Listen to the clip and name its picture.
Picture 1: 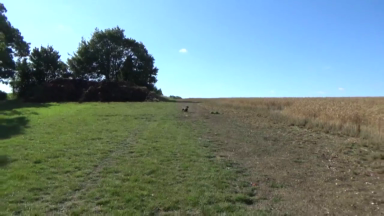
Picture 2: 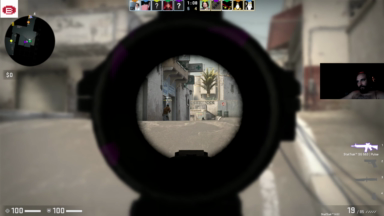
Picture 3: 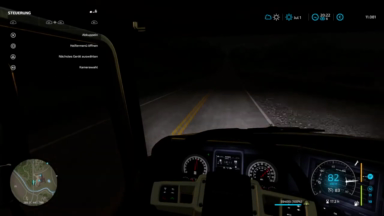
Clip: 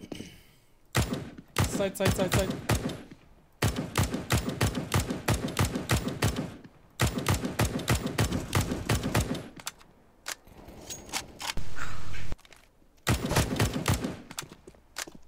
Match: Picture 2